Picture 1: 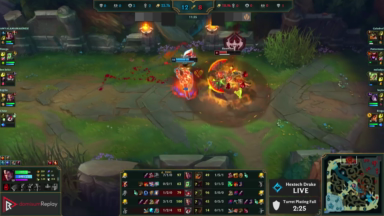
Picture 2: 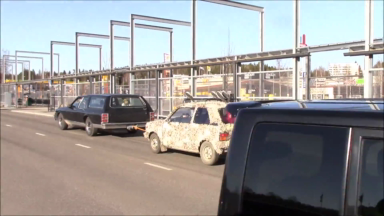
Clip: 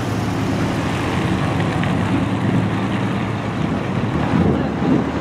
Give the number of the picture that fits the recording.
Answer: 2